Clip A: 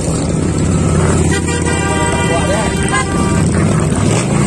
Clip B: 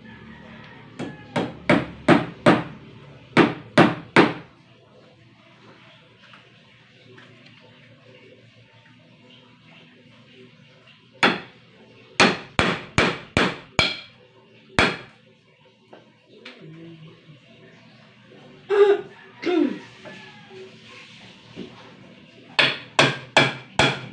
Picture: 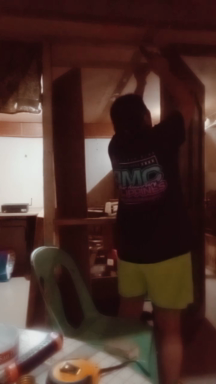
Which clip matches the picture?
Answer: B